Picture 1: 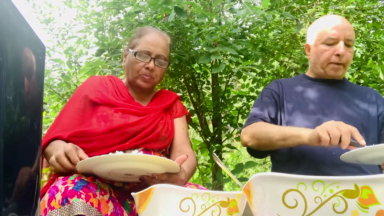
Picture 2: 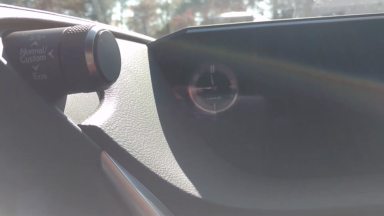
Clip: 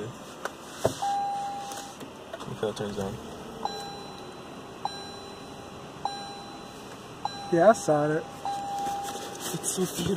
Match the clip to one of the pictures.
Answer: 2